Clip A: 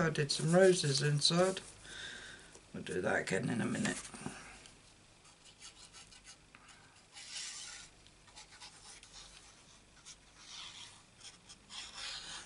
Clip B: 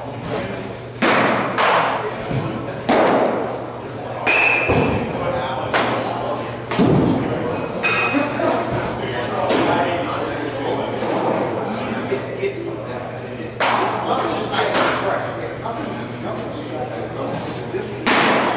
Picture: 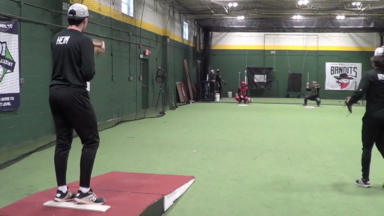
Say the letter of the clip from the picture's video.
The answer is B